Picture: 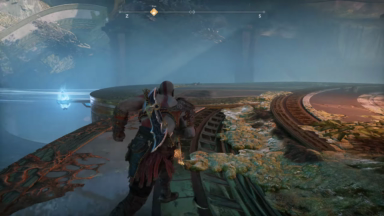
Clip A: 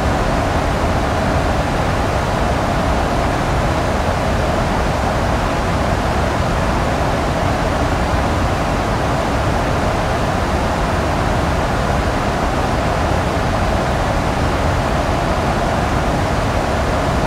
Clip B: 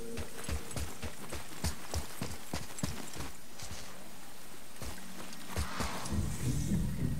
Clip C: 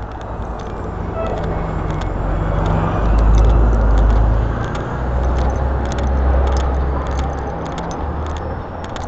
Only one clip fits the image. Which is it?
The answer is B